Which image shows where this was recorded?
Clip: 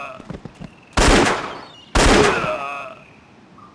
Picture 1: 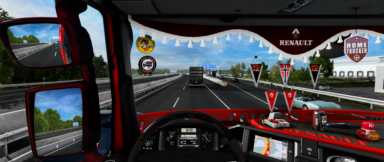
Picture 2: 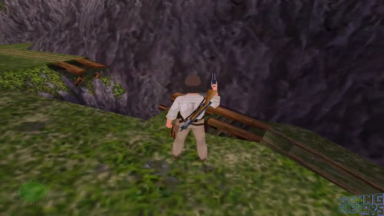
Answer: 2